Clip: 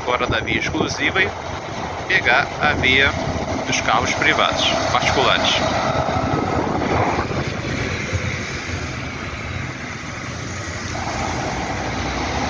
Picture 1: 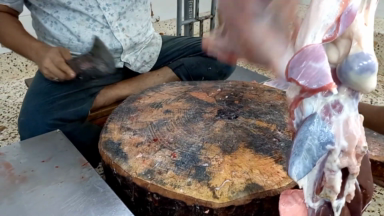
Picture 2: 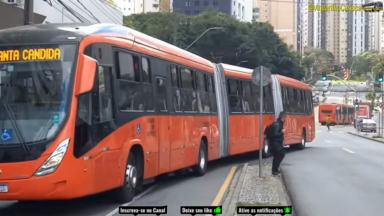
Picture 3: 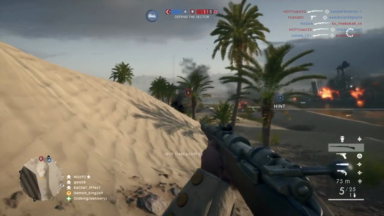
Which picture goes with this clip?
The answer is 2